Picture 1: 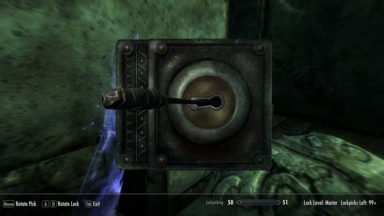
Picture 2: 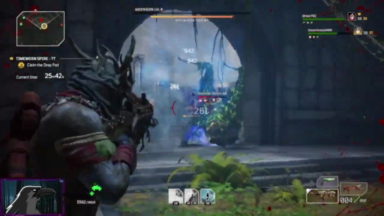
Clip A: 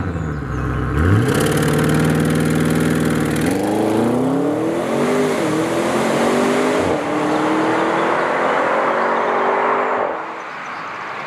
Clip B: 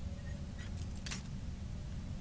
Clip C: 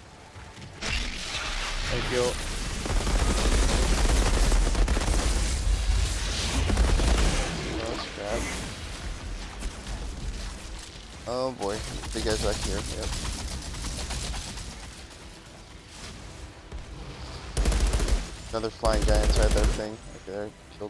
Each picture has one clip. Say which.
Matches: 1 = B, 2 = C